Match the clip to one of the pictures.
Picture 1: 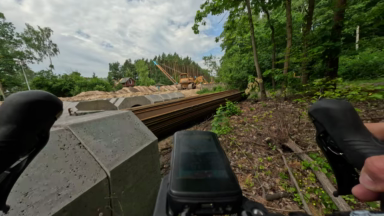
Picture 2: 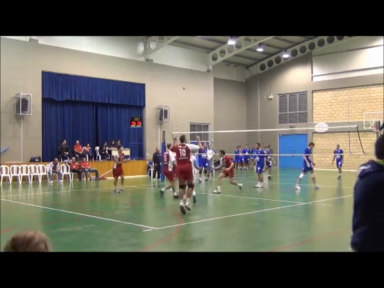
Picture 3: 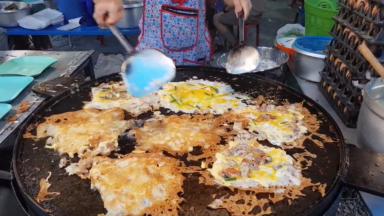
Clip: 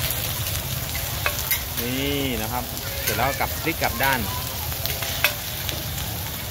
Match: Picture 3